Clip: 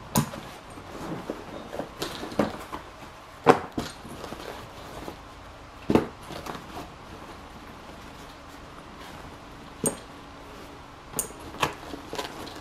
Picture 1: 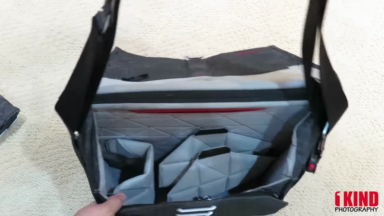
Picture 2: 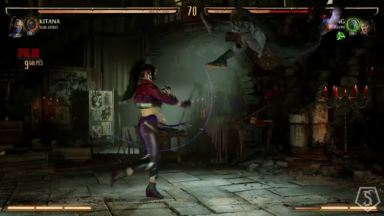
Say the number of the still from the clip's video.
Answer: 1